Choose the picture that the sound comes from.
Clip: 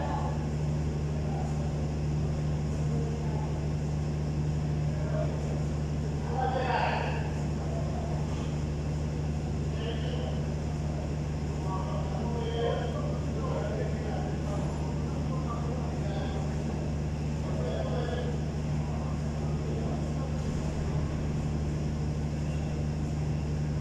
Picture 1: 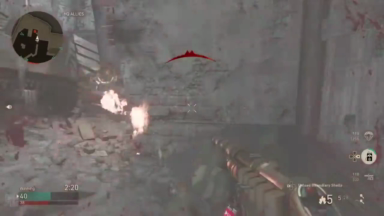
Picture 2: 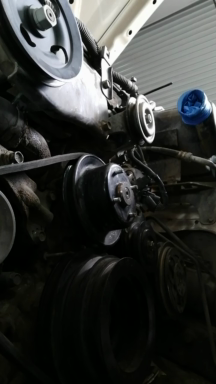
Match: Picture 2